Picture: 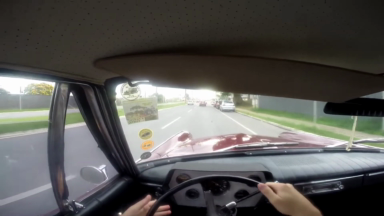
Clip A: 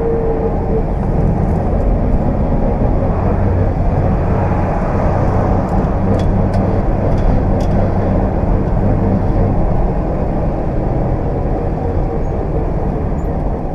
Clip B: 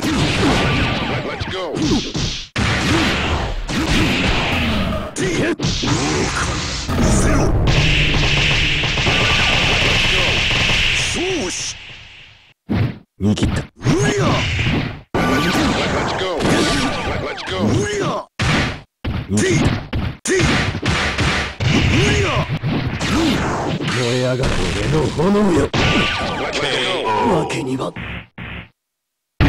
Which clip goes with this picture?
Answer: A